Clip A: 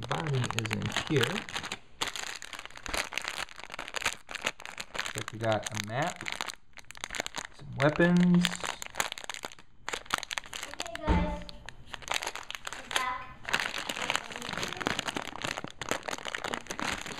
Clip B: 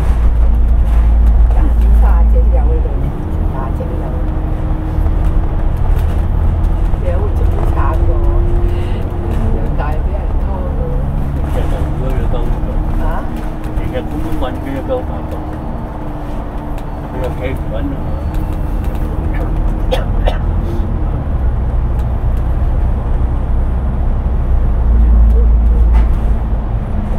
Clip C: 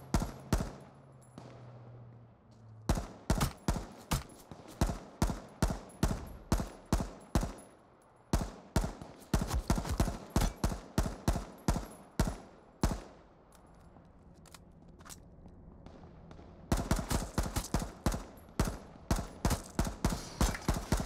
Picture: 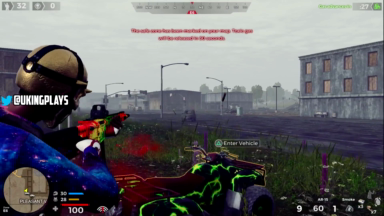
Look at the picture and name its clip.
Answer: C